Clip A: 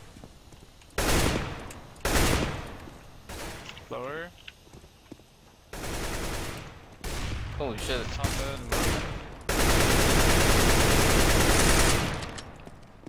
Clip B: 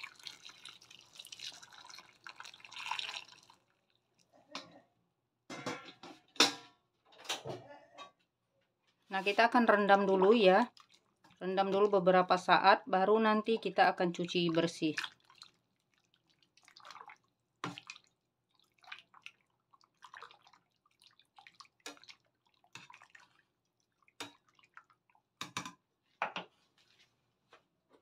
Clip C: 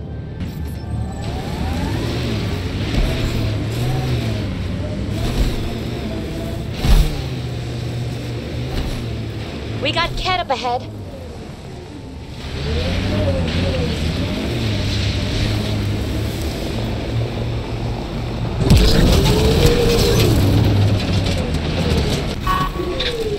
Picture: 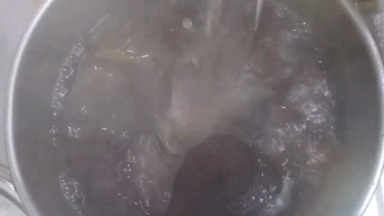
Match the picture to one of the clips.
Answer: B